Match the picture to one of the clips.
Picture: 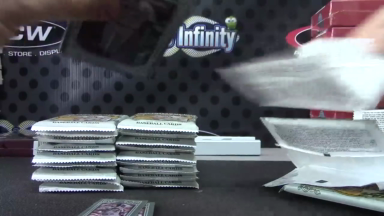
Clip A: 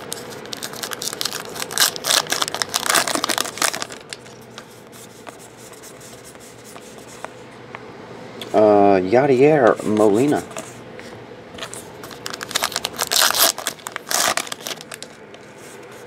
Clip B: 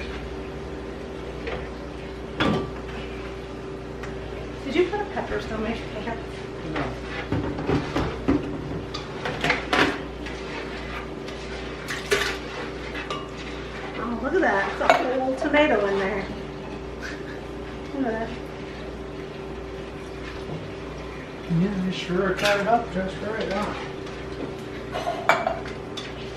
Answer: A